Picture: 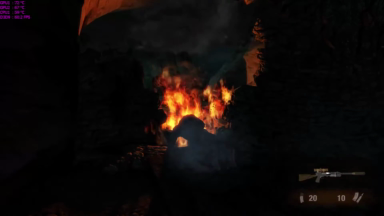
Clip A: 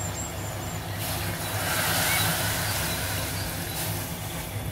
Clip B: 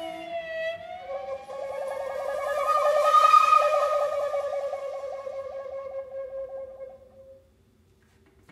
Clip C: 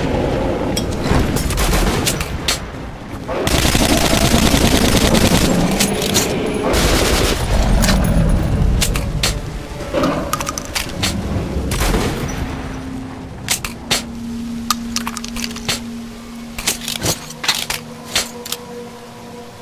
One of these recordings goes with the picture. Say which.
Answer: C